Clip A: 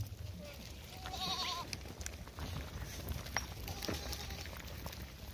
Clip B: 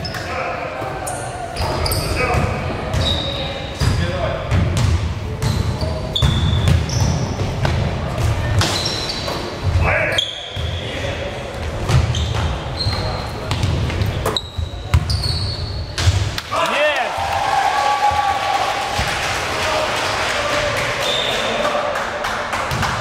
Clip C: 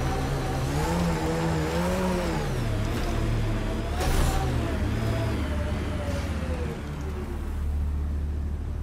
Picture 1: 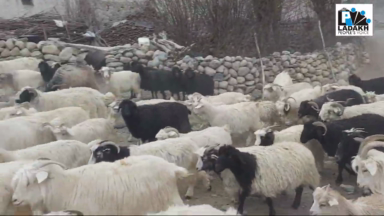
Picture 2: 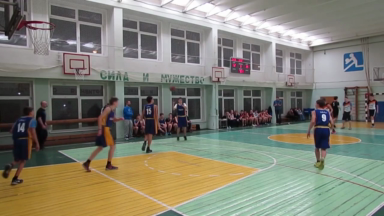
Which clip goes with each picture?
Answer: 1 A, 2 B